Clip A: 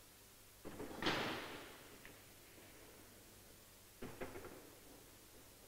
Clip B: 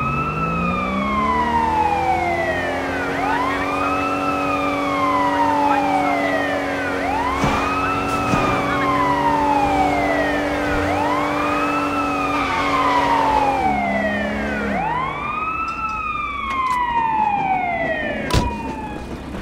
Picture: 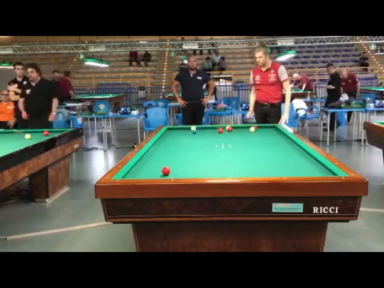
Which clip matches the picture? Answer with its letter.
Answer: A